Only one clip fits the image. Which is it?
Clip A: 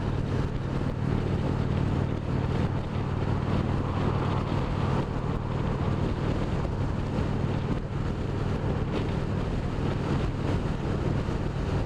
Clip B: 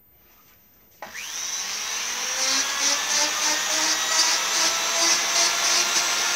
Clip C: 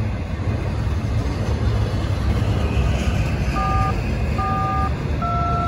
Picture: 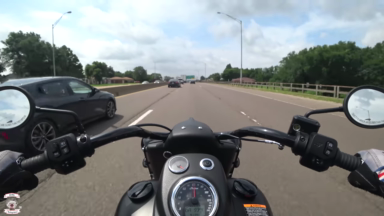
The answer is A